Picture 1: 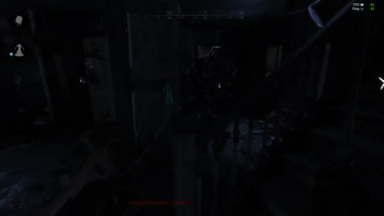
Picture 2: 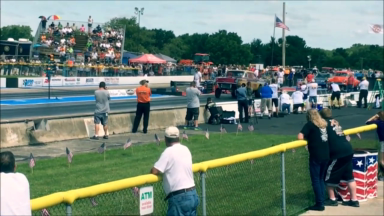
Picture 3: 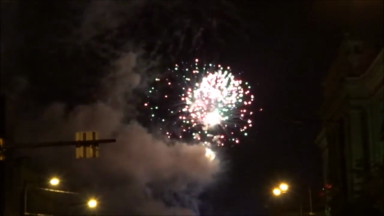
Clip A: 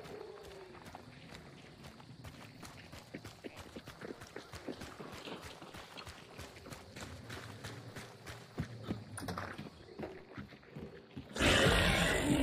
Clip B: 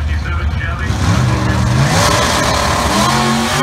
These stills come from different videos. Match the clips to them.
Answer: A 1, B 2